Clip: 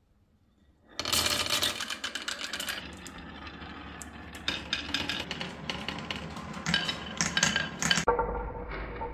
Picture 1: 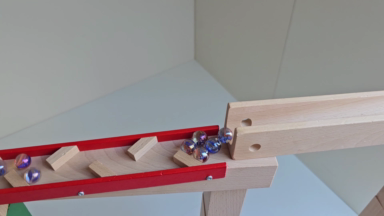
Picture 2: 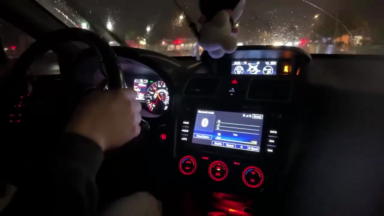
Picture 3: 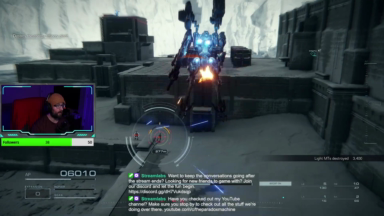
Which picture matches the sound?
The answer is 1